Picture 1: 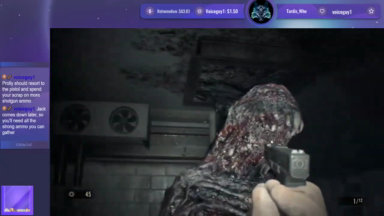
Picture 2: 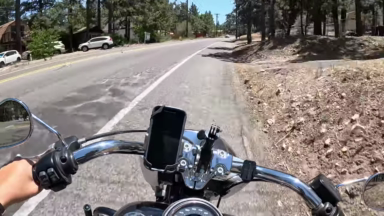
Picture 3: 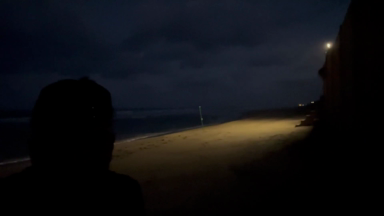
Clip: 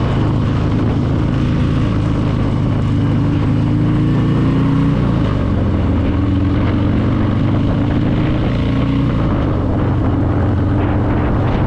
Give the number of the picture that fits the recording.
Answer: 2